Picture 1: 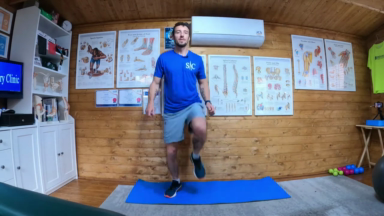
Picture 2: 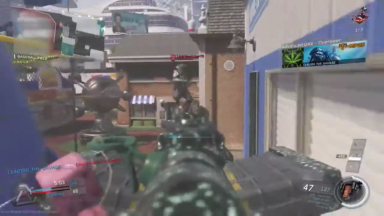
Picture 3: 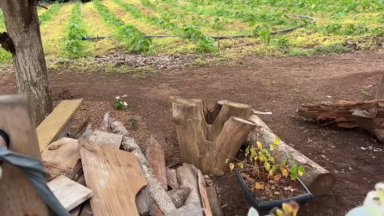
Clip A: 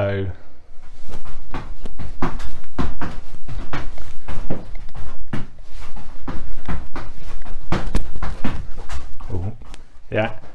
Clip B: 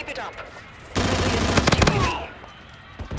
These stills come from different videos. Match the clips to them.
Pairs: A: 1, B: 2